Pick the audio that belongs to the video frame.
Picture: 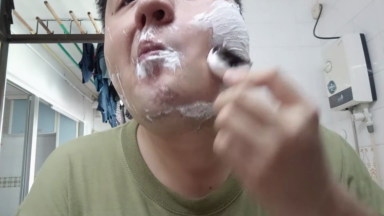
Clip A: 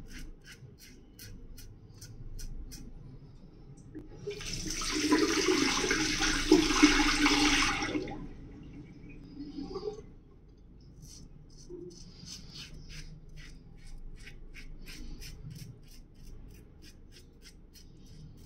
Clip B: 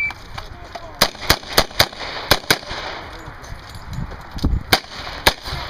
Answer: A